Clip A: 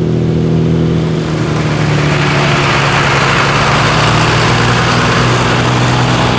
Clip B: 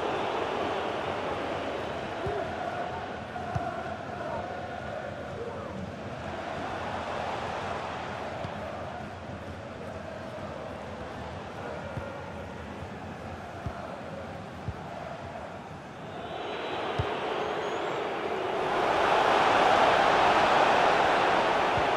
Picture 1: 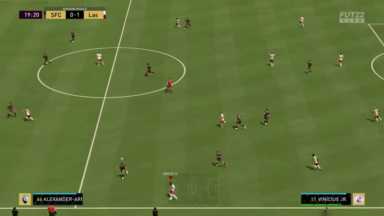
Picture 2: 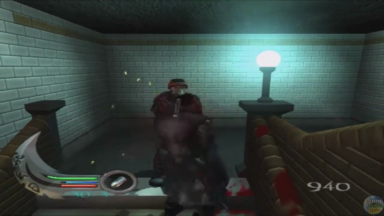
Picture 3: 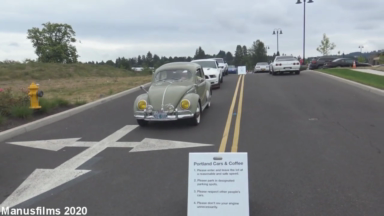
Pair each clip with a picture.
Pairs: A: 3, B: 1